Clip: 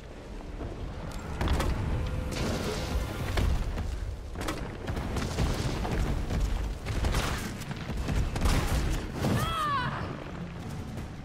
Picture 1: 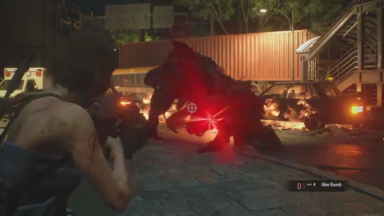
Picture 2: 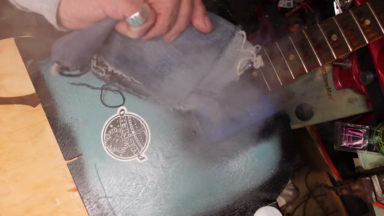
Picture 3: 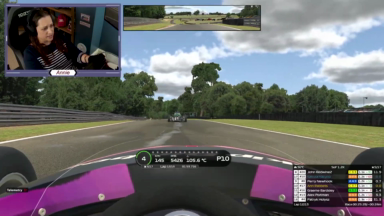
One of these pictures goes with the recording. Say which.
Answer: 1